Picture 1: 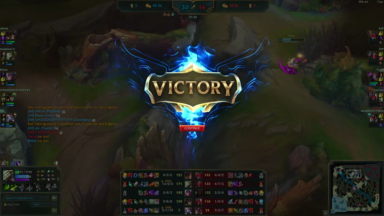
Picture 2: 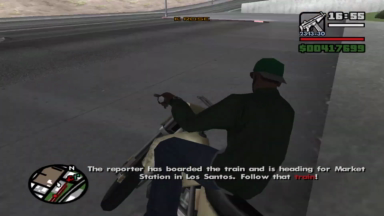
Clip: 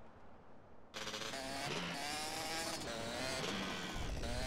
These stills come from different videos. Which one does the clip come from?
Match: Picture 2